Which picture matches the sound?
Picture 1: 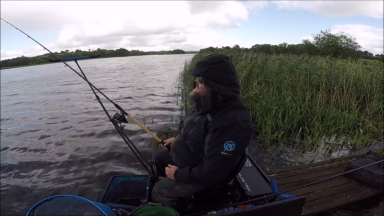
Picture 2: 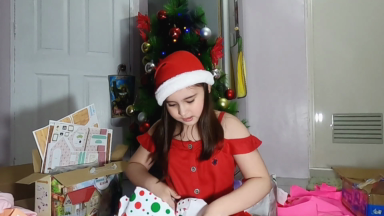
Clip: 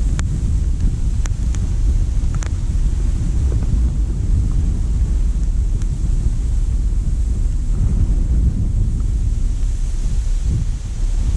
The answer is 1